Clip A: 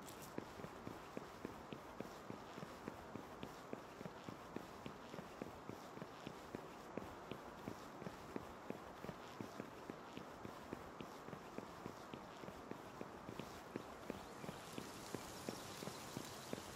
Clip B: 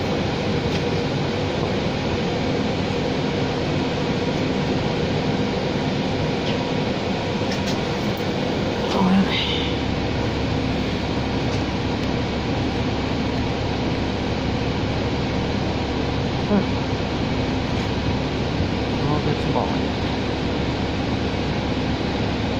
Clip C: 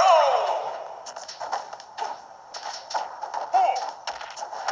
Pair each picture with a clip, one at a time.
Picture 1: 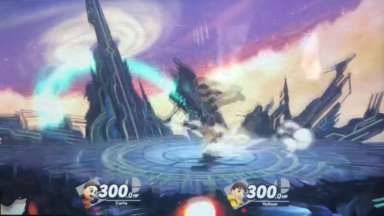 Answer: C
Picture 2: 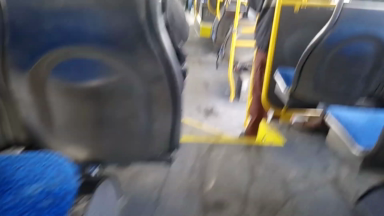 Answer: B